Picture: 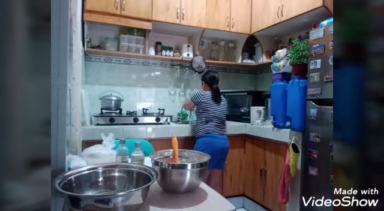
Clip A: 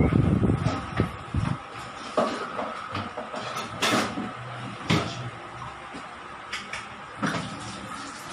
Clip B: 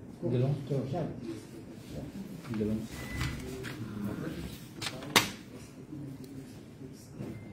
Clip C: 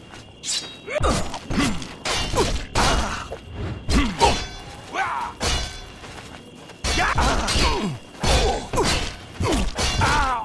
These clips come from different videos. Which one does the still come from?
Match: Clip A